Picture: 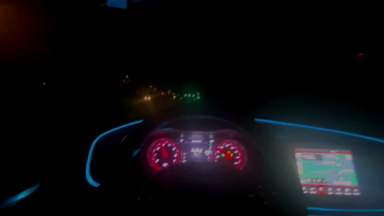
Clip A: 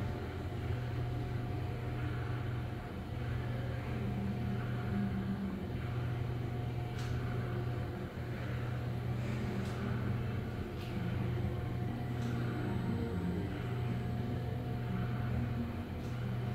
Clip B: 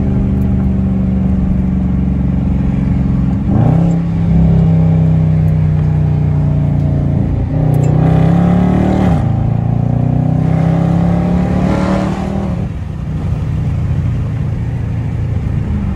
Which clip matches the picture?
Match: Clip B